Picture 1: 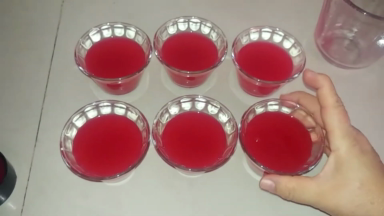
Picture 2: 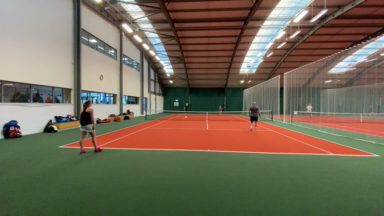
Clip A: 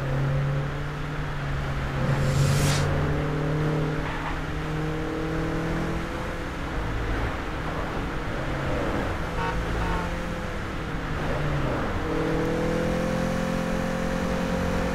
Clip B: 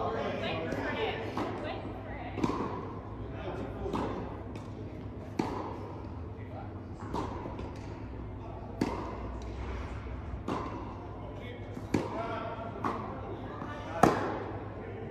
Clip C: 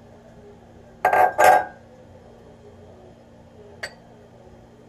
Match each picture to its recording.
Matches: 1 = C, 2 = B